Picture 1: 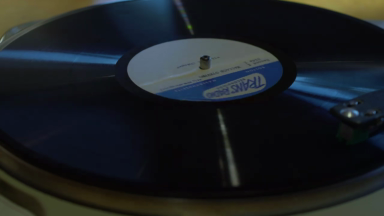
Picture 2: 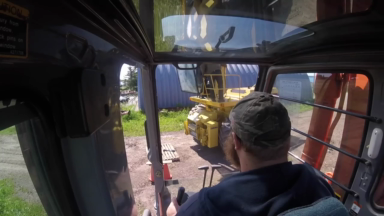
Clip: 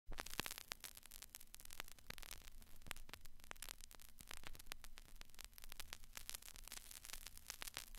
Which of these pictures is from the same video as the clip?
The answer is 1